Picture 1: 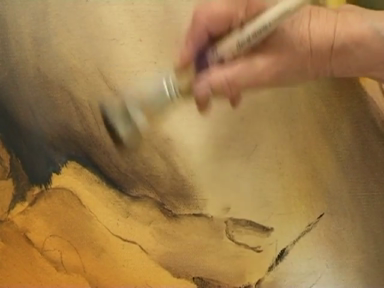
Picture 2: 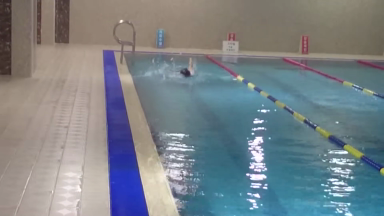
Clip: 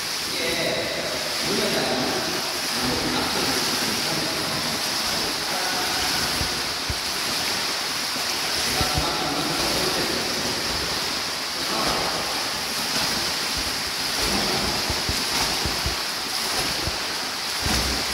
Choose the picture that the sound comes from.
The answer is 2